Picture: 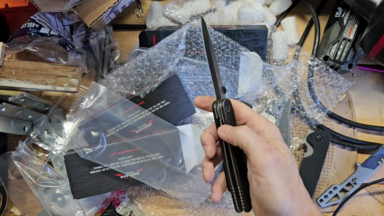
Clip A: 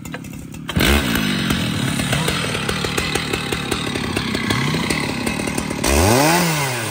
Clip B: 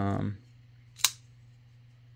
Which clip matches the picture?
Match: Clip B